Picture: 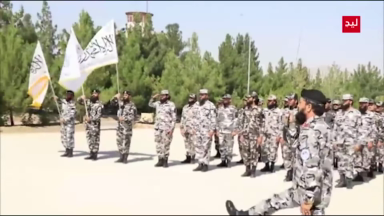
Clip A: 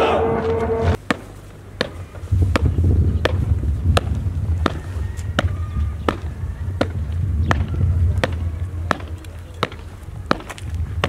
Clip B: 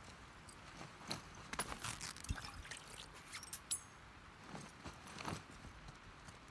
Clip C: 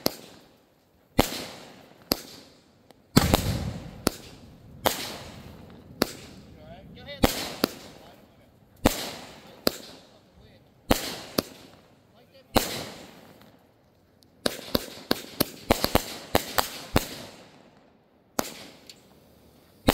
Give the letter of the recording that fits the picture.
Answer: A